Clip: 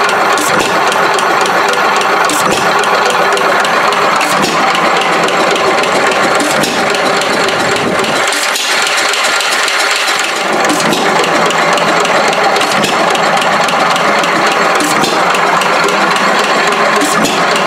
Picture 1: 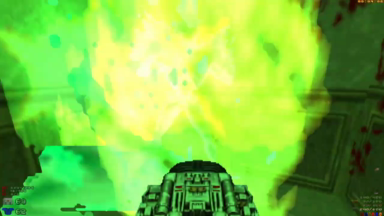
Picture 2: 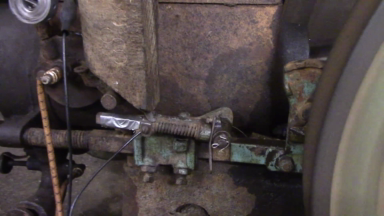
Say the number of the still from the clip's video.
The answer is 2